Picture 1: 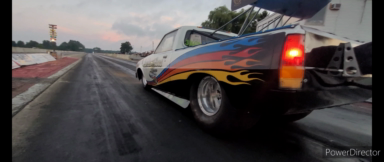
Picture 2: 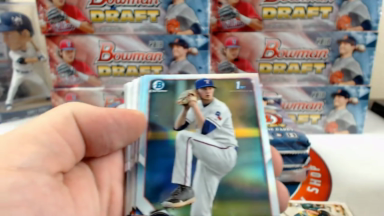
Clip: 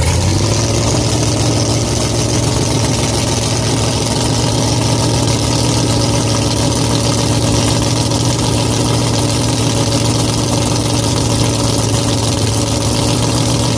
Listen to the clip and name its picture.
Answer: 1